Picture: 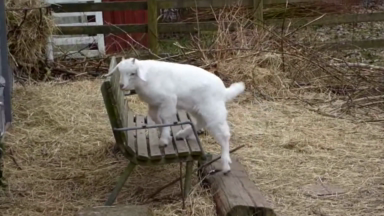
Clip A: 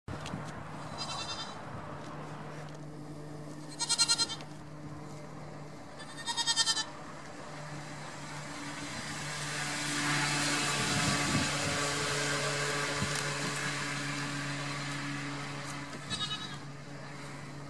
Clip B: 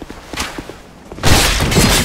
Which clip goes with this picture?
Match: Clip A